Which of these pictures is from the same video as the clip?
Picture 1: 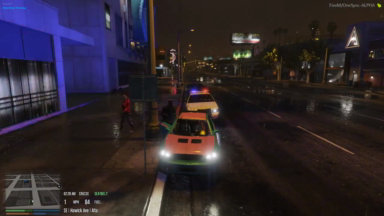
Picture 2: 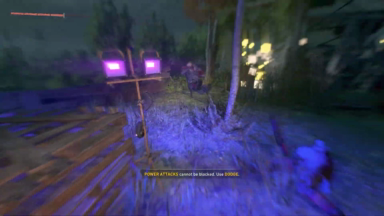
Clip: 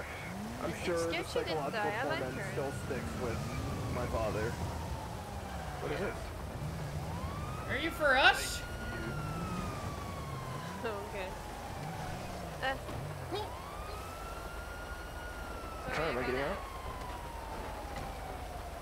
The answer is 1